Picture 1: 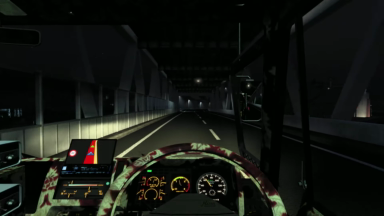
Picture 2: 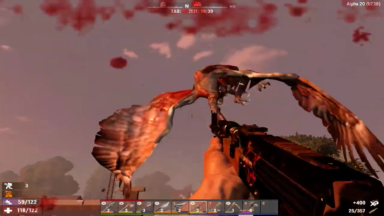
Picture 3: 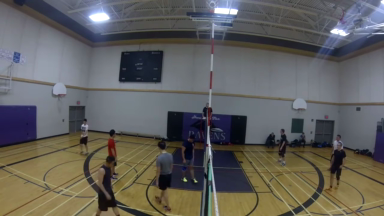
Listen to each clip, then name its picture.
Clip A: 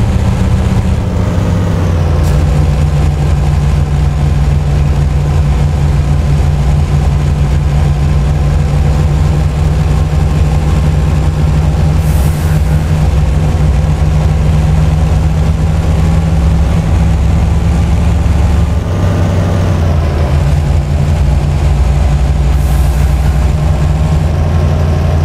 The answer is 1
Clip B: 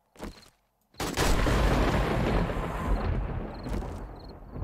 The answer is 2